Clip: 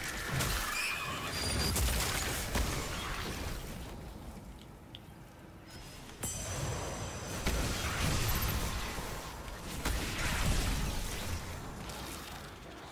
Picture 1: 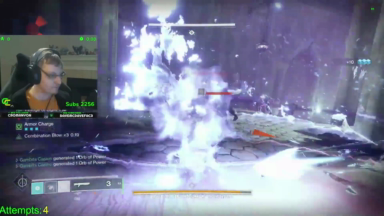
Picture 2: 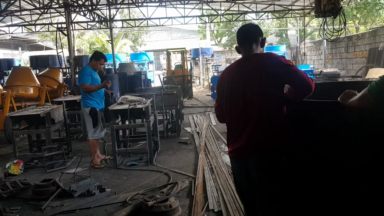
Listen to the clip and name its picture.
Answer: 1